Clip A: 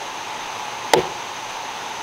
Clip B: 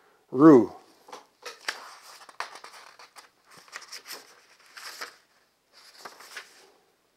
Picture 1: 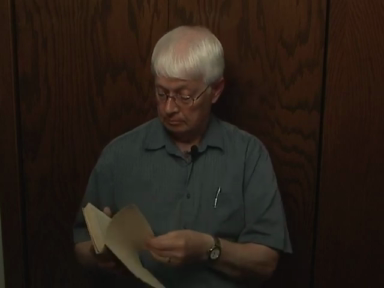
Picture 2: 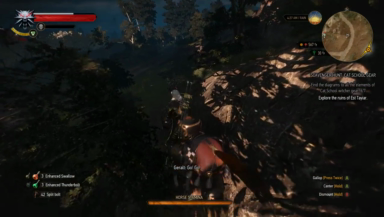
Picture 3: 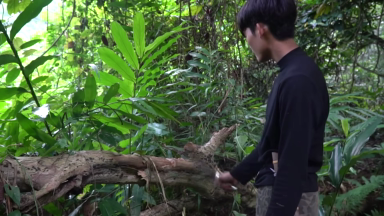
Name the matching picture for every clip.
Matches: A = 3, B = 1